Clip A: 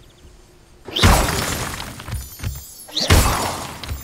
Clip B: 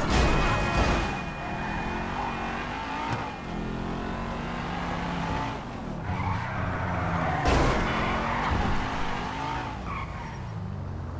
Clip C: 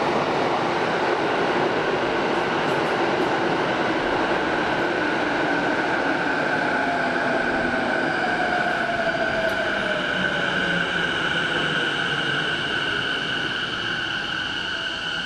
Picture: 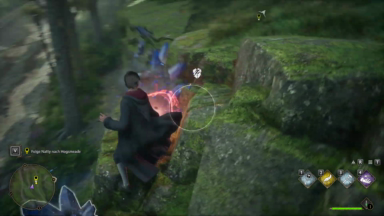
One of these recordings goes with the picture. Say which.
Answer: A